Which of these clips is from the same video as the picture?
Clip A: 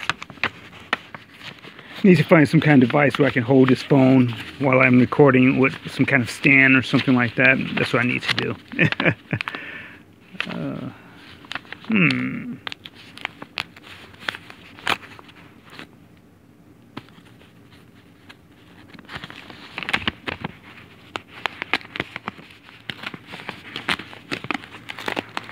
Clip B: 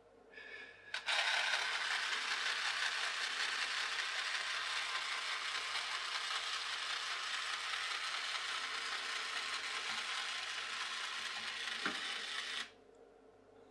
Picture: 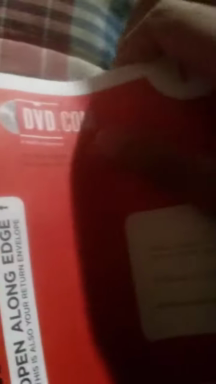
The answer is A